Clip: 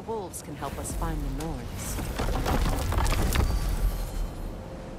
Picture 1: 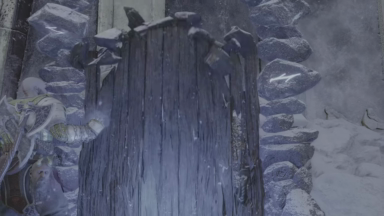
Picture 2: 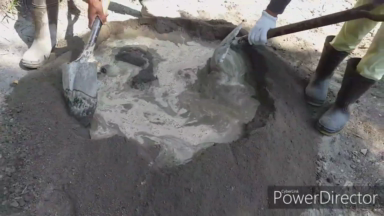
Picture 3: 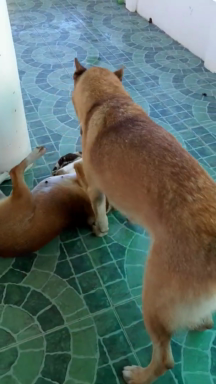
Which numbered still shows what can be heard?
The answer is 1